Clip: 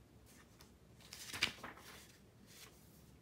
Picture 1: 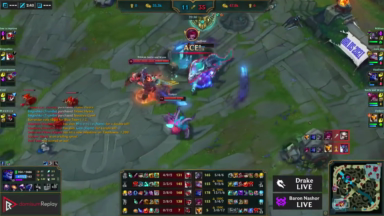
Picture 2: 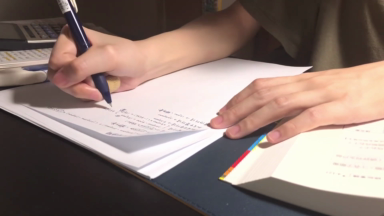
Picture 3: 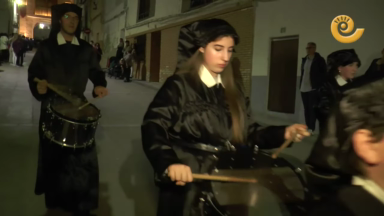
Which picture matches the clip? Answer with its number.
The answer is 2